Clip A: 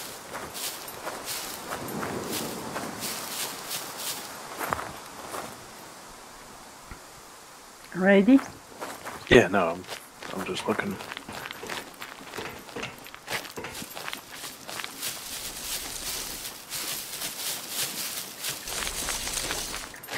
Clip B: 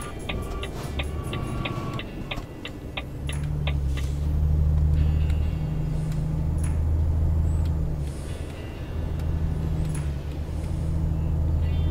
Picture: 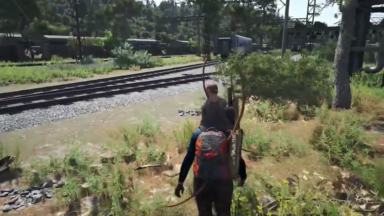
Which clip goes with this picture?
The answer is A